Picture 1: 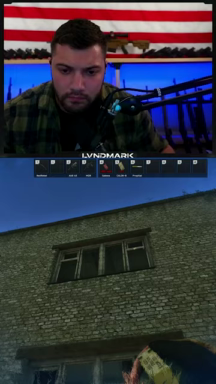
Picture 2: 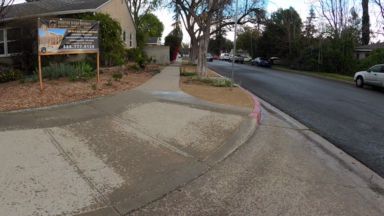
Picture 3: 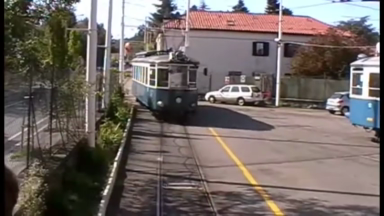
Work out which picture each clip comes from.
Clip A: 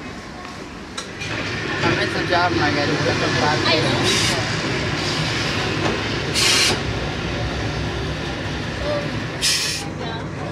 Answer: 3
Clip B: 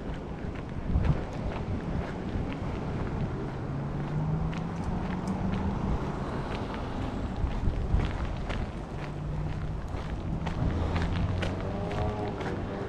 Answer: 2